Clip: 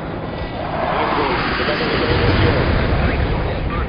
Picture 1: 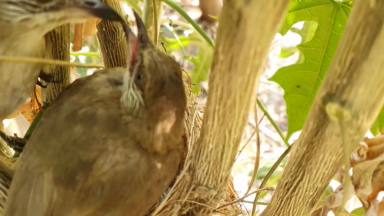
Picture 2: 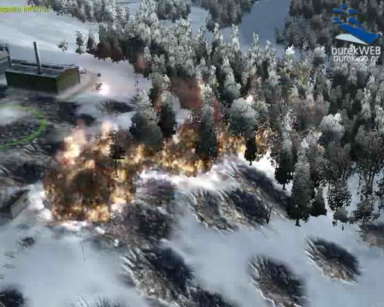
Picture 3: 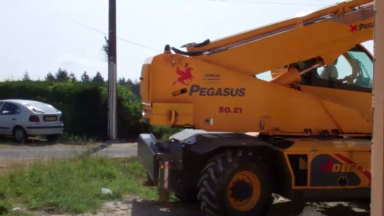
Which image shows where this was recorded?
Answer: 2